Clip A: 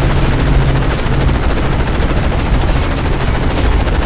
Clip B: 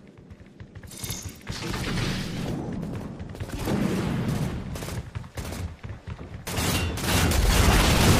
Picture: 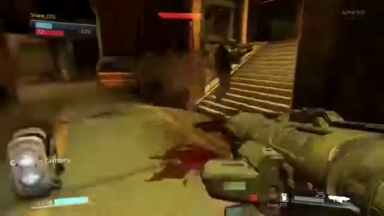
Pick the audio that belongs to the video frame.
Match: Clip B